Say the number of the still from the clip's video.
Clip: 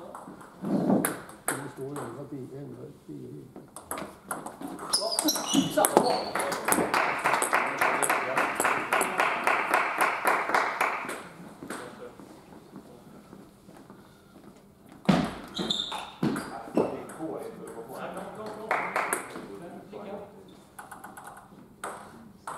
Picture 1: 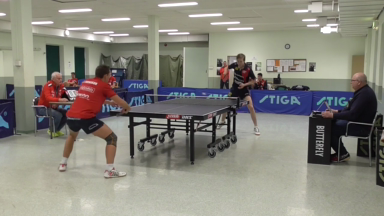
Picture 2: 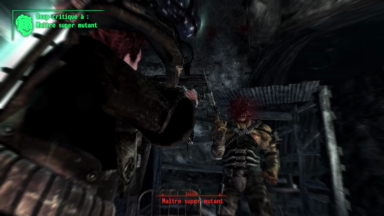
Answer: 1